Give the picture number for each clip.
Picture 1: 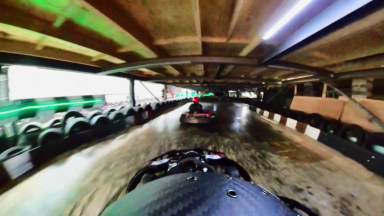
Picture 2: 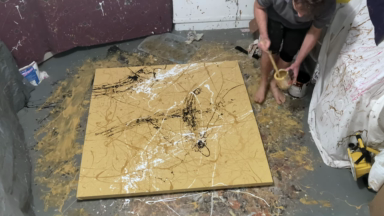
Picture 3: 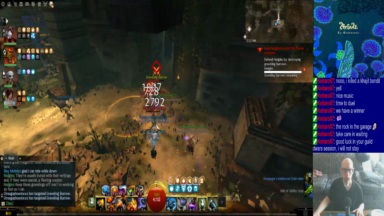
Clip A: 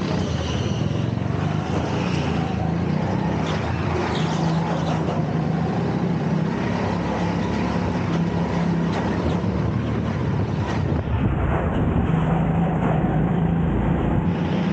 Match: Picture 1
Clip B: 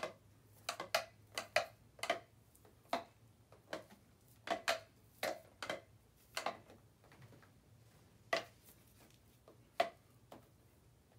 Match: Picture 2